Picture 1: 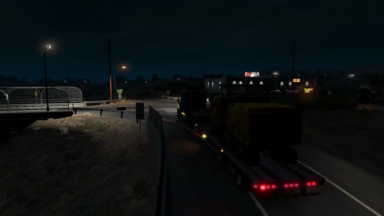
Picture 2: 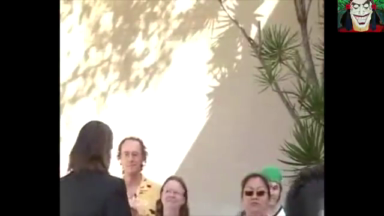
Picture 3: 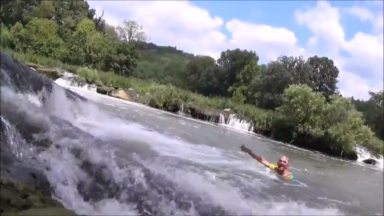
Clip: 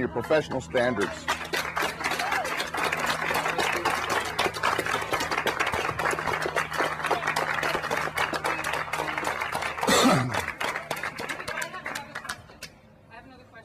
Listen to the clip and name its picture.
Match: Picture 2